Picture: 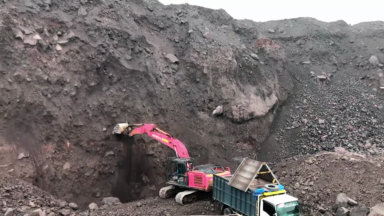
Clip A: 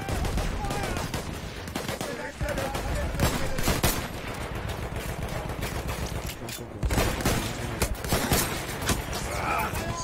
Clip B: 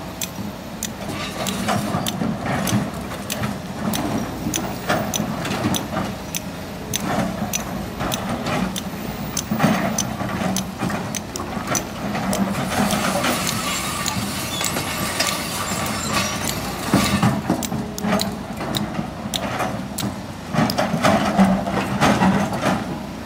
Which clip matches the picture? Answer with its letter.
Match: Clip B